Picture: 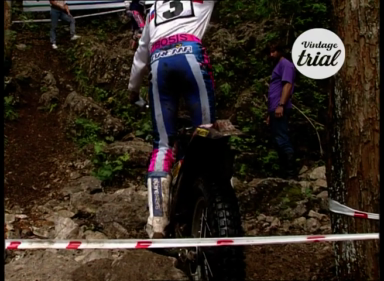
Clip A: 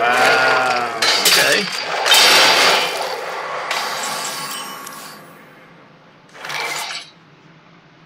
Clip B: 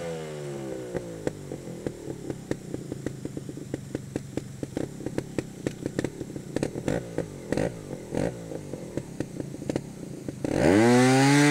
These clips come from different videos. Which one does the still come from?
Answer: B